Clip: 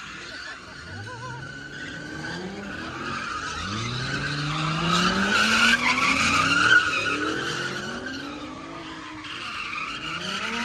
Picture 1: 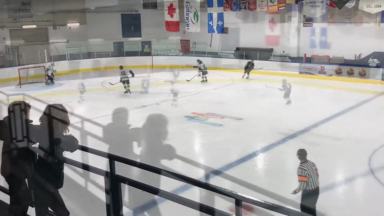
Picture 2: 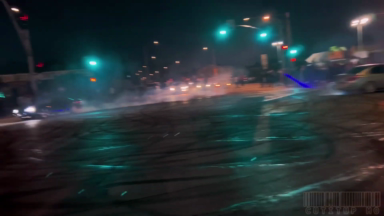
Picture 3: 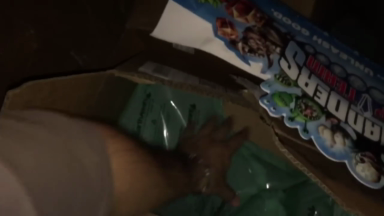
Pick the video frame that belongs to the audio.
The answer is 2